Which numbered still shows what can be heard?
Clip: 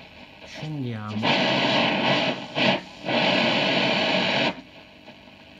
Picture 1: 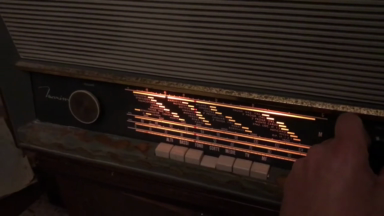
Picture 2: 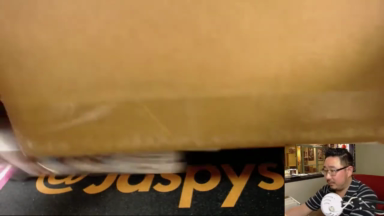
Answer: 1